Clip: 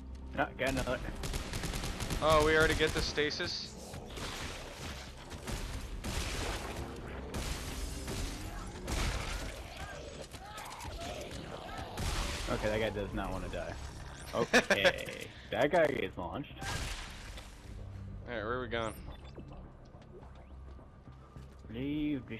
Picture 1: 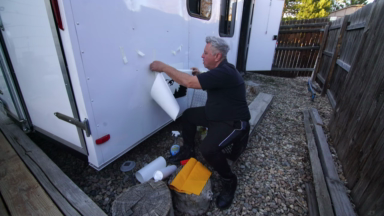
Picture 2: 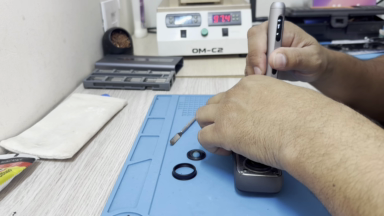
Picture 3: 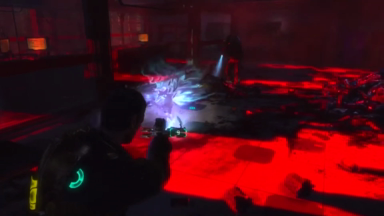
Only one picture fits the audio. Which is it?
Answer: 3